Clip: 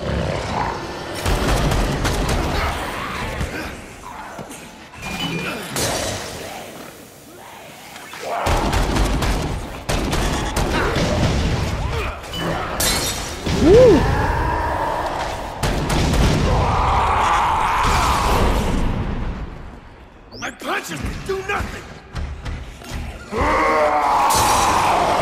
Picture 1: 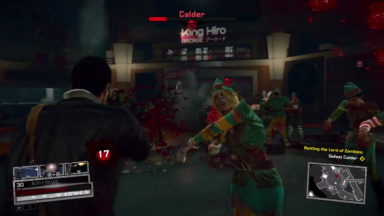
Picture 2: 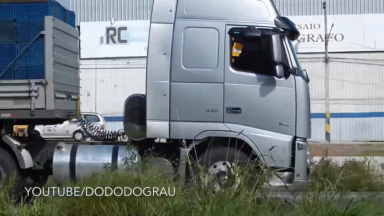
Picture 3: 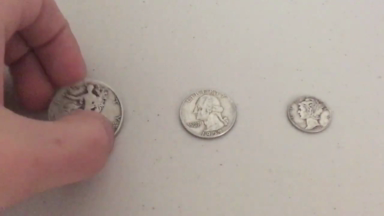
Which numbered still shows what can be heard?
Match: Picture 1